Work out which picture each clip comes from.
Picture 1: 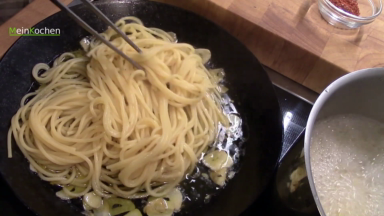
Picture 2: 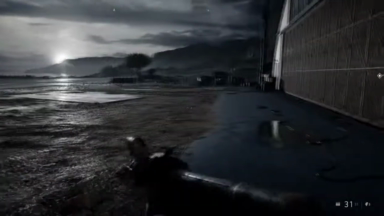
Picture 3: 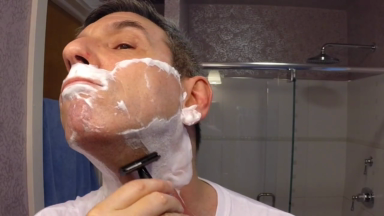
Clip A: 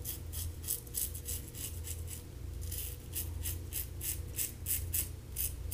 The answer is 3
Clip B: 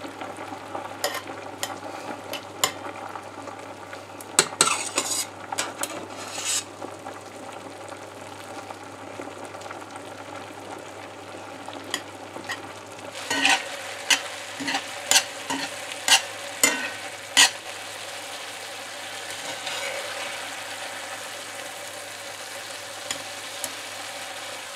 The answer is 1